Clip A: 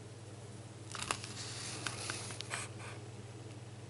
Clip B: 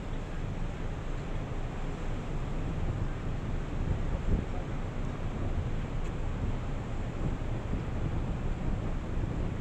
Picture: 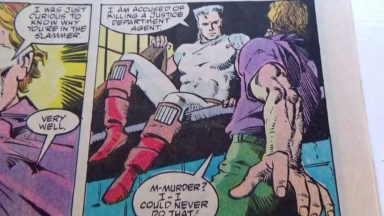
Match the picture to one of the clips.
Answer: A